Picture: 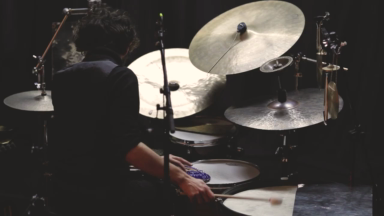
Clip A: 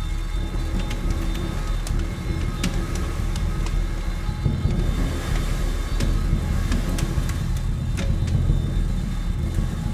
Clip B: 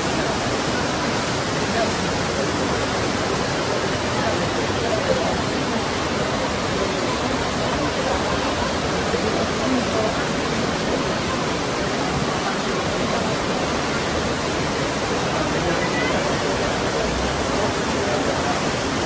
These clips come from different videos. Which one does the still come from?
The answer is A